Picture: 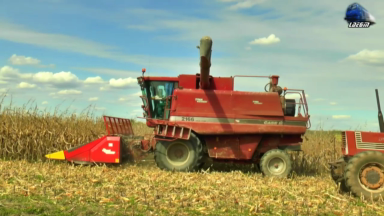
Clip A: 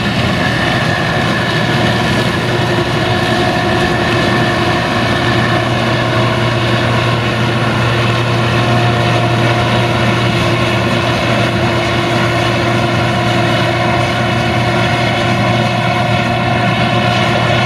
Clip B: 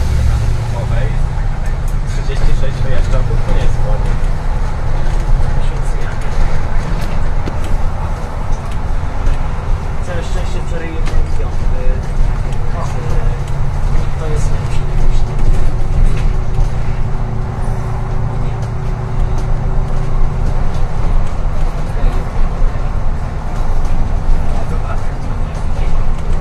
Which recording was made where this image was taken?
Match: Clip A